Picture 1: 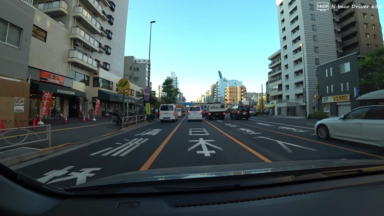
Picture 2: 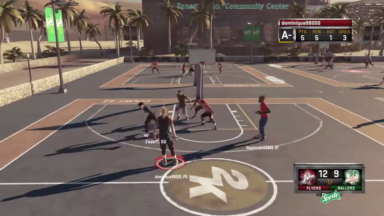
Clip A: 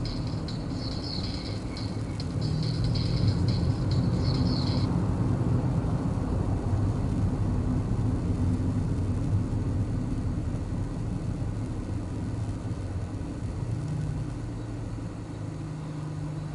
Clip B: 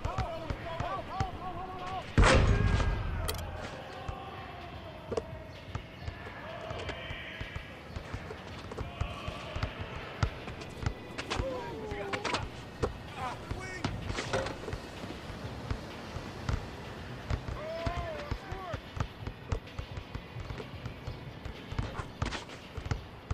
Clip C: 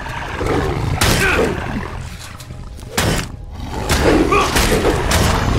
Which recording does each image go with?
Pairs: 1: A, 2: B